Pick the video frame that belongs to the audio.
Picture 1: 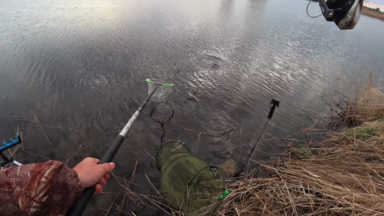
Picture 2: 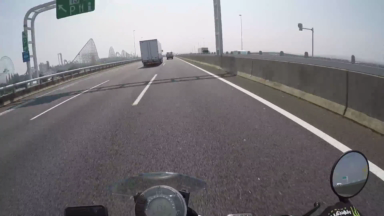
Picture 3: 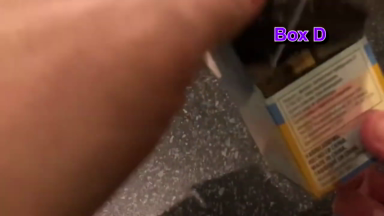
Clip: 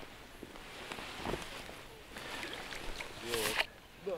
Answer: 1